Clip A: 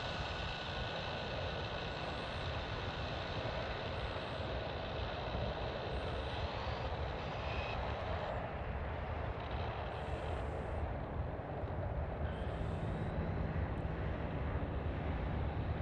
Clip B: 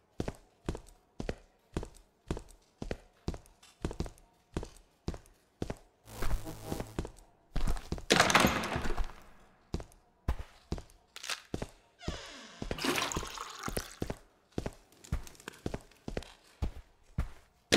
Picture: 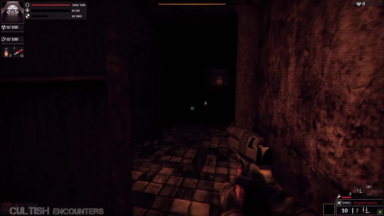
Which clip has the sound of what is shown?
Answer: B